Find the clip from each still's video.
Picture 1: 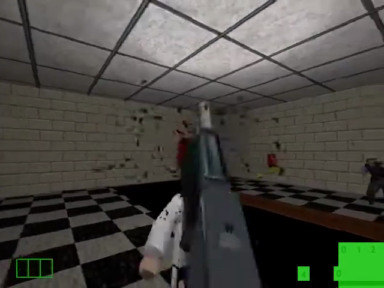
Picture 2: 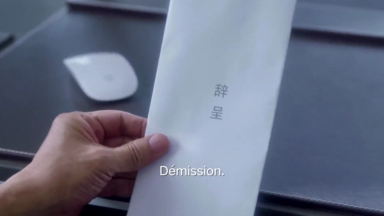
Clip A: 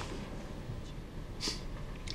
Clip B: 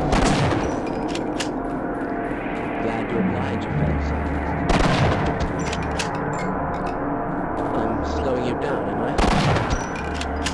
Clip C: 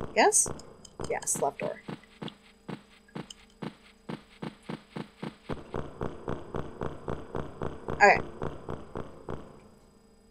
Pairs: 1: B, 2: A